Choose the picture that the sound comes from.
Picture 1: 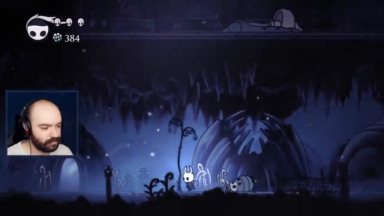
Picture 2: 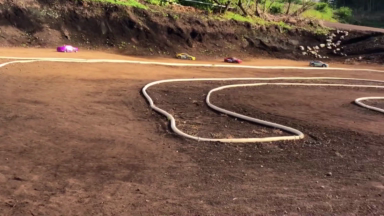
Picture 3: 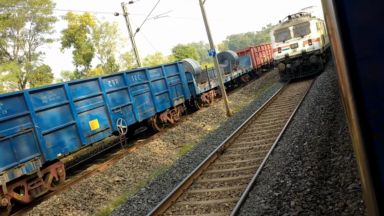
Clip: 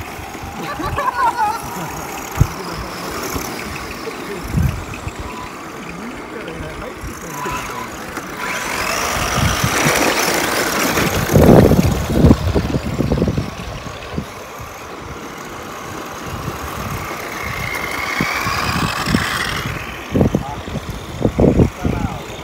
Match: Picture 2